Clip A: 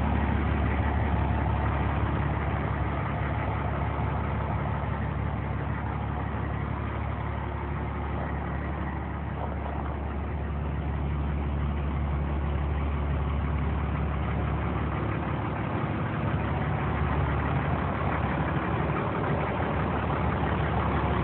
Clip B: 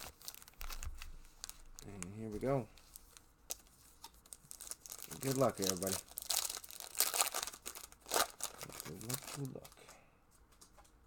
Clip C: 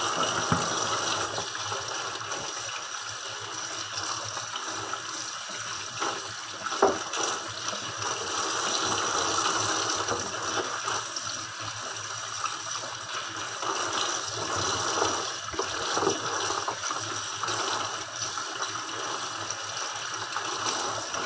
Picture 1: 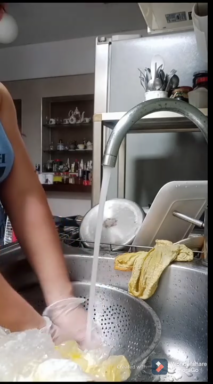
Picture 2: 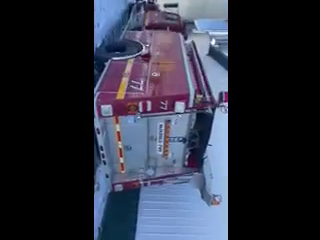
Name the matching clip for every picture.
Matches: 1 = C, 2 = A